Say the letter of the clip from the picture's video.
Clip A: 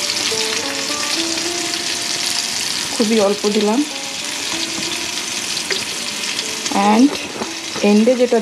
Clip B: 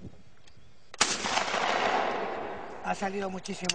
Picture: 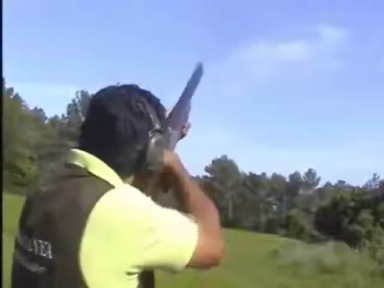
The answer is B